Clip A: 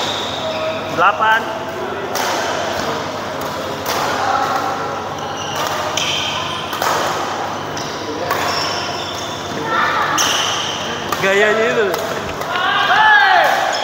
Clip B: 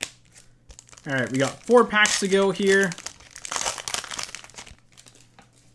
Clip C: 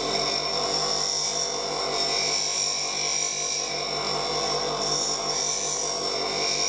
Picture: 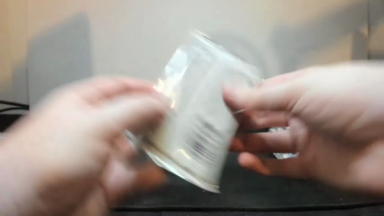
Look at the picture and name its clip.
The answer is B